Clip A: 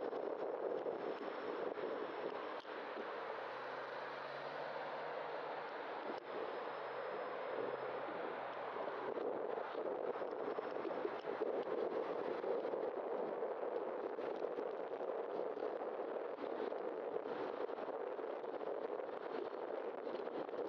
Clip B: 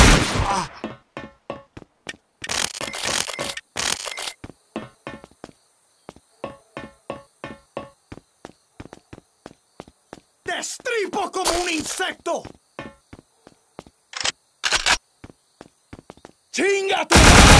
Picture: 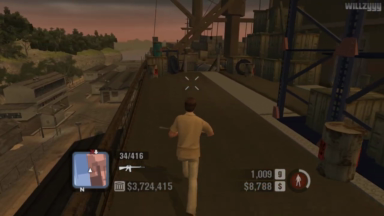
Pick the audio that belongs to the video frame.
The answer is B